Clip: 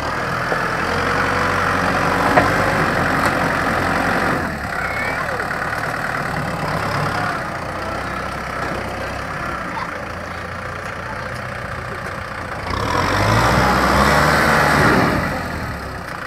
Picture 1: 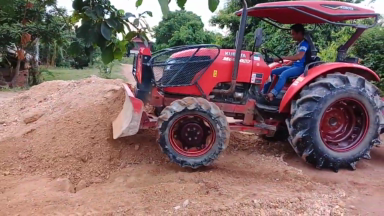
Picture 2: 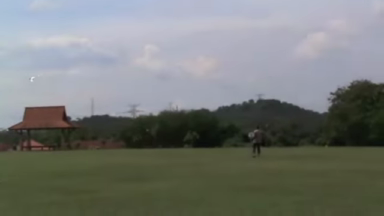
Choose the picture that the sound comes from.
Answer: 1